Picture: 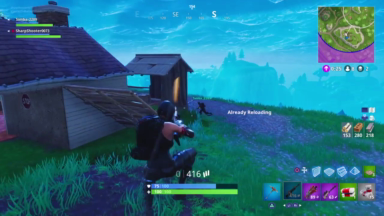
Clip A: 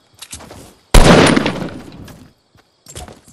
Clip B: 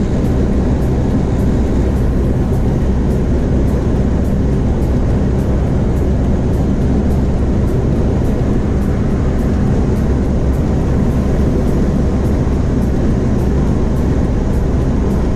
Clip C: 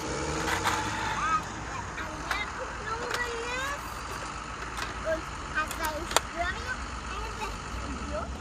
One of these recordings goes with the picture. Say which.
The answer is A